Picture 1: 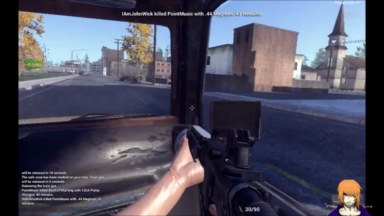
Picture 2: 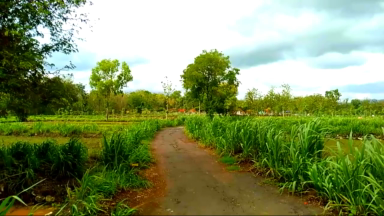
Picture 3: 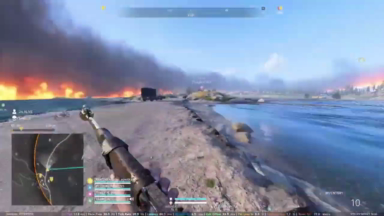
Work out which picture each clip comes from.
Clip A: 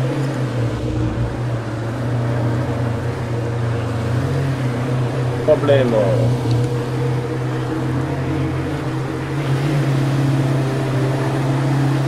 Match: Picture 1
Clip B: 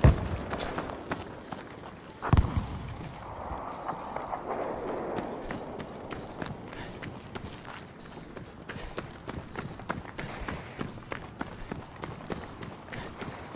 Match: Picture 3